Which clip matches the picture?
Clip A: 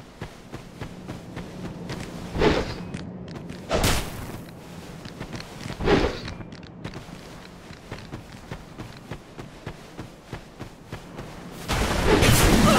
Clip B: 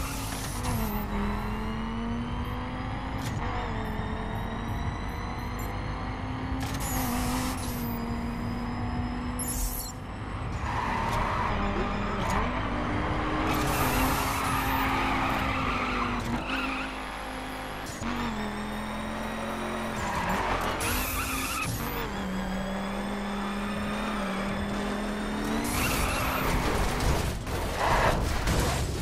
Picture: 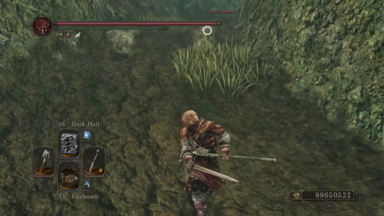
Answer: A